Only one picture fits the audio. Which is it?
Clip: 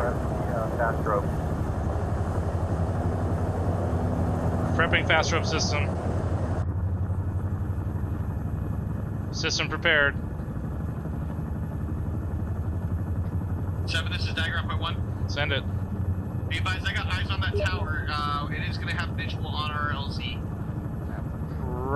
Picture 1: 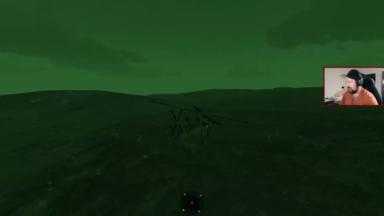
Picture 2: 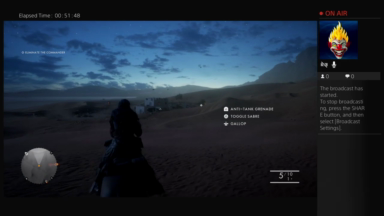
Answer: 1